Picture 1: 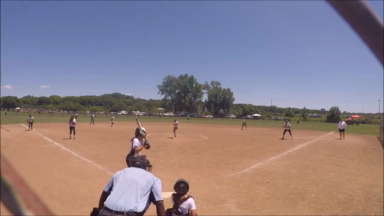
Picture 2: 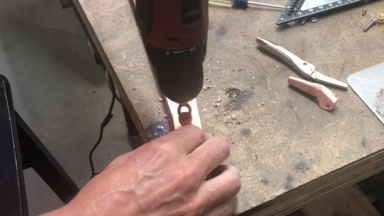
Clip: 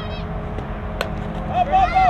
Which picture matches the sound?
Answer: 1